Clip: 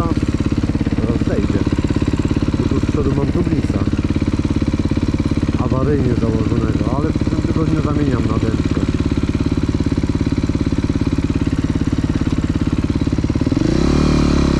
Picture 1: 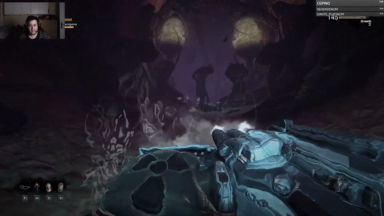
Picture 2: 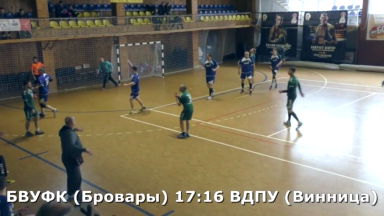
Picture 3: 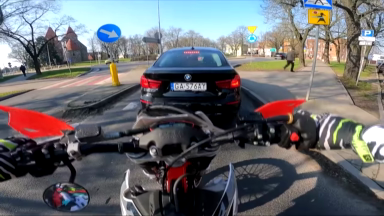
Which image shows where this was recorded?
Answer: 3